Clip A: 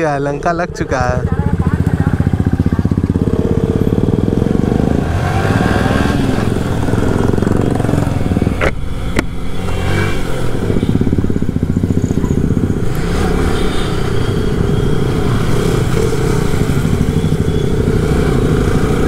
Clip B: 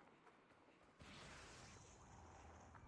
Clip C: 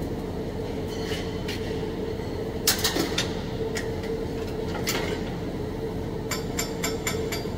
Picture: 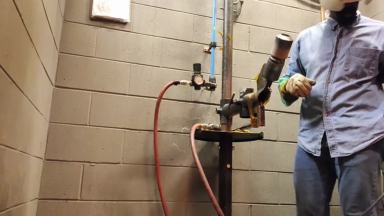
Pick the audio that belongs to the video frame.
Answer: C